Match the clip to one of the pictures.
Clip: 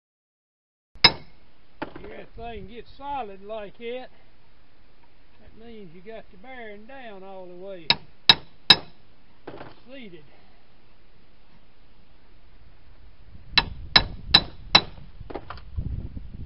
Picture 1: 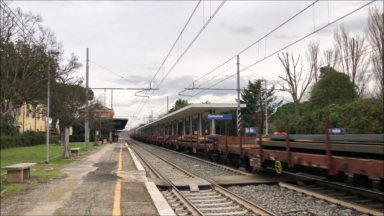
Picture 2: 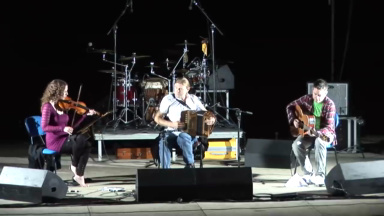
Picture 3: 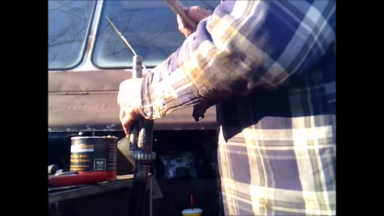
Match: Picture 3